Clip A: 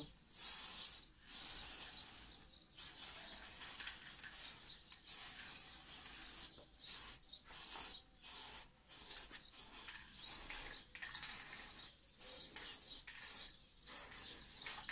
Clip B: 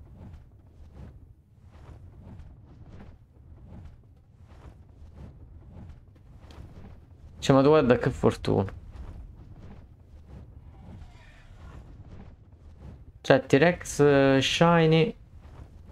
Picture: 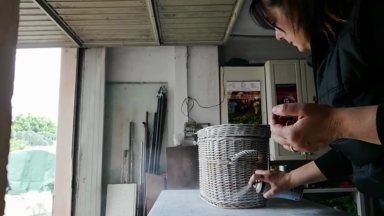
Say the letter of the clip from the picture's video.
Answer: A